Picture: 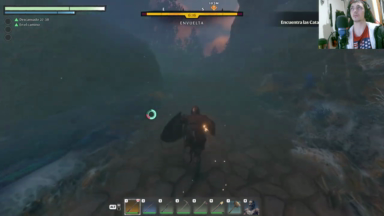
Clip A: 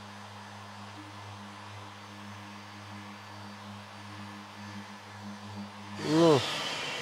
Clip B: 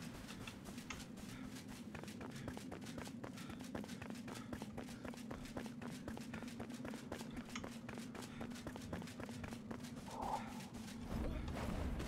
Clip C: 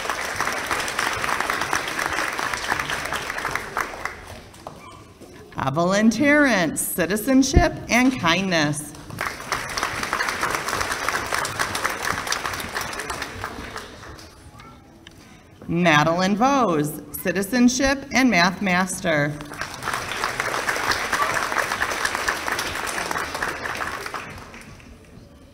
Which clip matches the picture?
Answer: B